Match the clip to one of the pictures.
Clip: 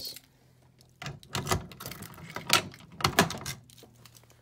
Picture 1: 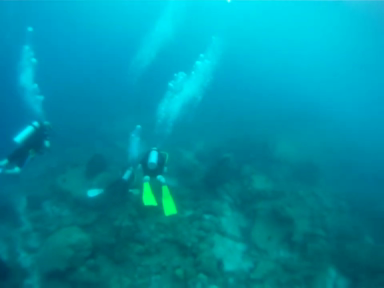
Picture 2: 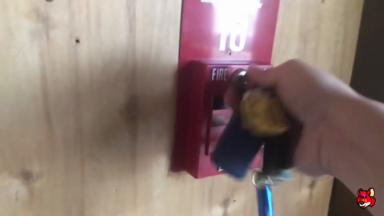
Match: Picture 2